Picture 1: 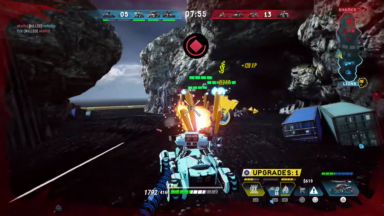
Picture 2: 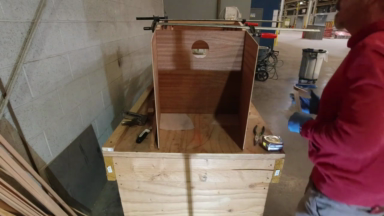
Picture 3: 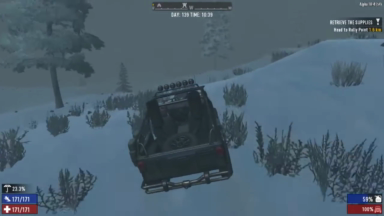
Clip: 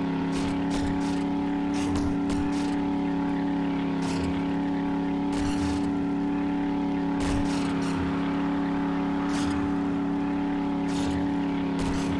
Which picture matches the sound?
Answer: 3